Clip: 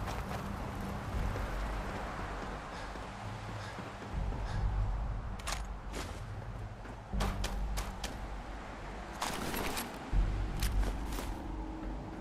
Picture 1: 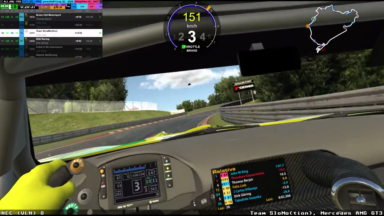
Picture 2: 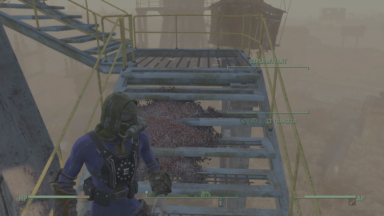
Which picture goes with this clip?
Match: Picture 2